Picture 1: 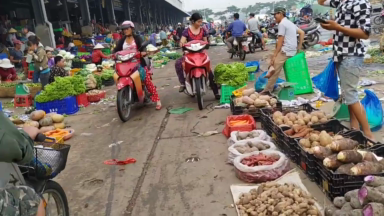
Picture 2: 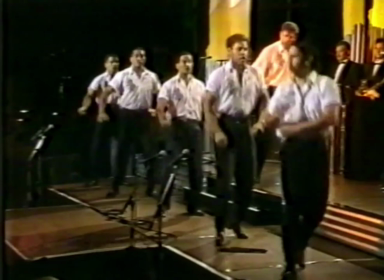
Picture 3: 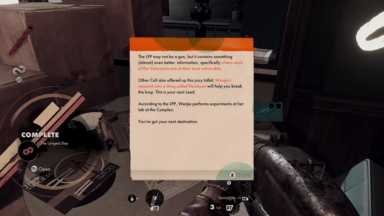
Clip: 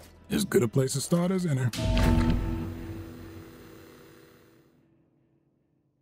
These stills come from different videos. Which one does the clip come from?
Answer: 3